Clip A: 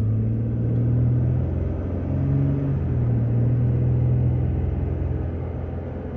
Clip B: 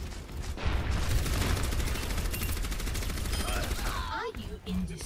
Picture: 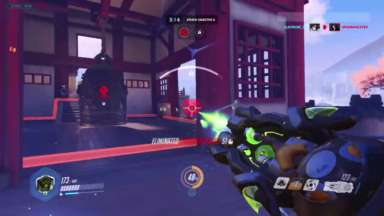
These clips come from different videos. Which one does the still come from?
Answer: B